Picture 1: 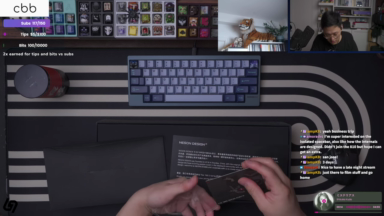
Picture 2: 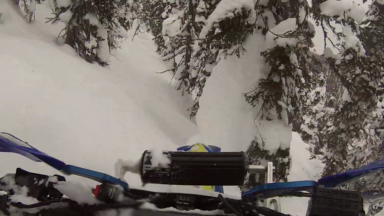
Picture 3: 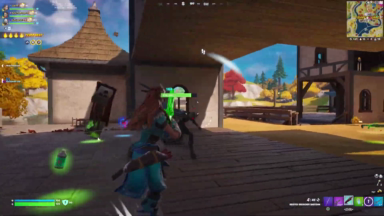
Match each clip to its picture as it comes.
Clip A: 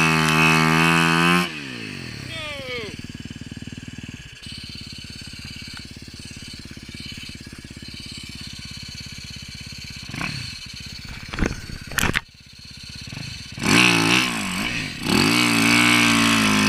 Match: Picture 2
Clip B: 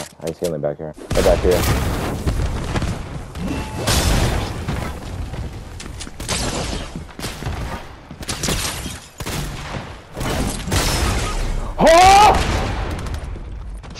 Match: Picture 3